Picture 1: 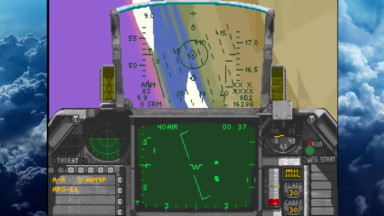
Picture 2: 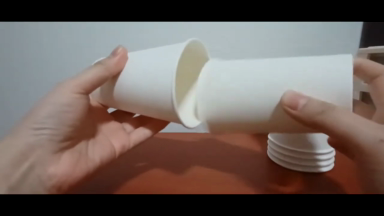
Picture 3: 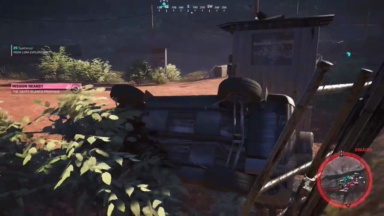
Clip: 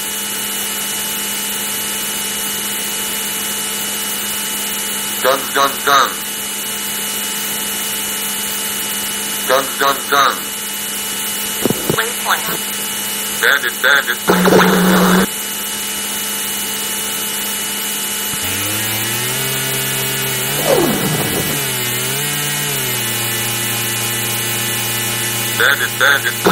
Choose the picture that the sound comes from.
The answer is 1